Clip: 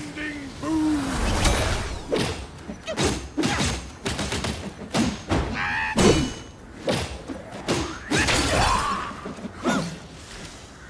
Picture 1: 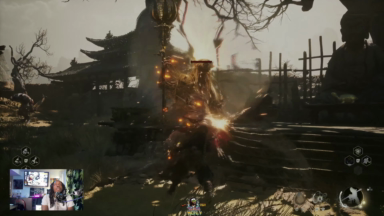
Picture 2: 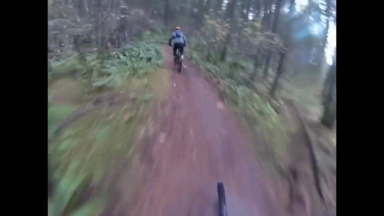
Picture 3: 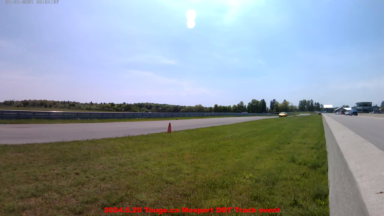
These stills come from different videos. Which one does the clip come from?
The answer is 1